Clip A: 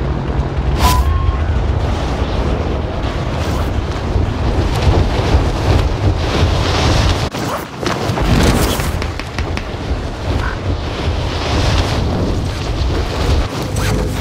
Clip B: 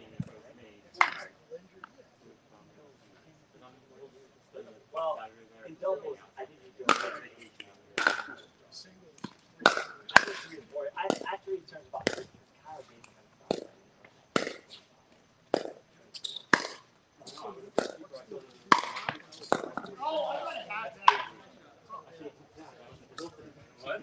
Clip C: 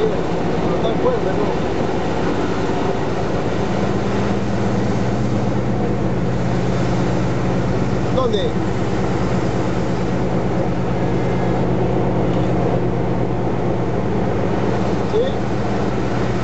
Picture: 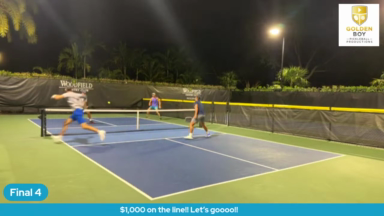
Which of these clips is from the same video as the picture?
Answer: B